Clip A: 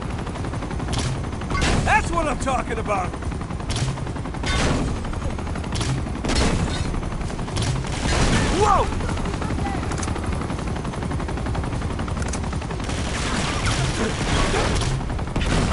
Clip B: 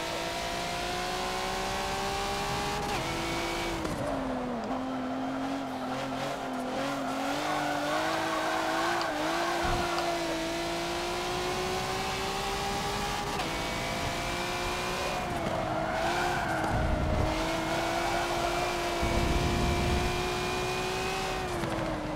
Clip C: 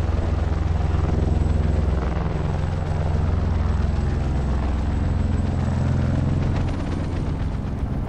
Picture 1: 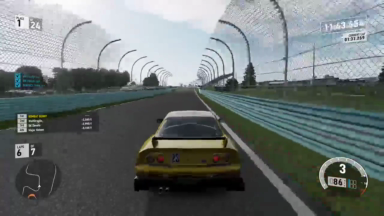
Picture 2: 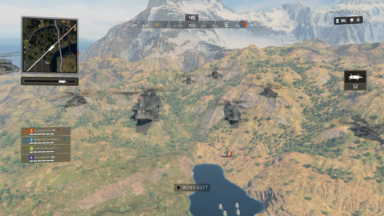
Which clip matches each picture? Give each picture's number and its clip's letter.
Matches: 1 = B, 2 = C